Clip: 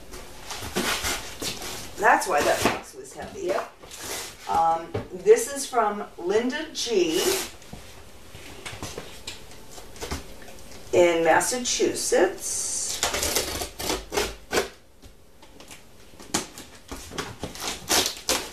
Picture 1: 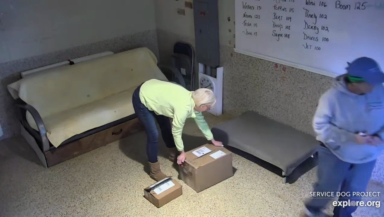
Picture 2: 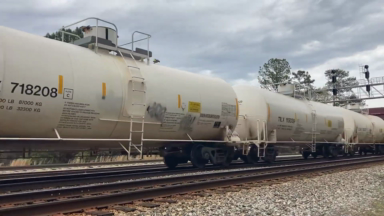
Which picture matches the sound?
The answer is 1